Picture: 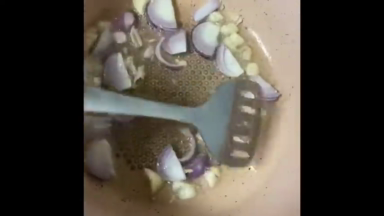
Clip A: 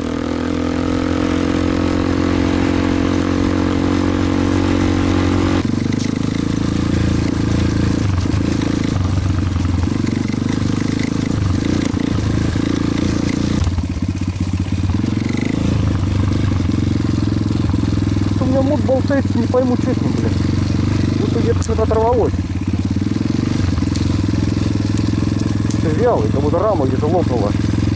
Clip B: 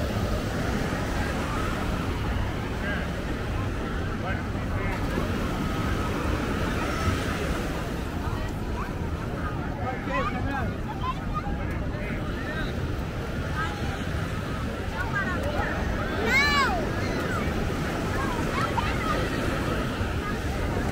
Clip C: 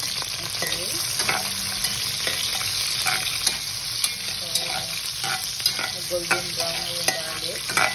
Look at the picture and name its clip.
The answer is C